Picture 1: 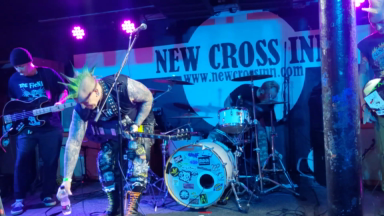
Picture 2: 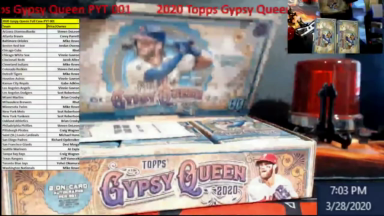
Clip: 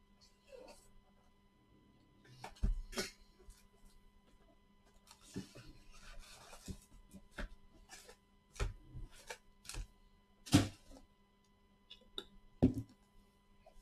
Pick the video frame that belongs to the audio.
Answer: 2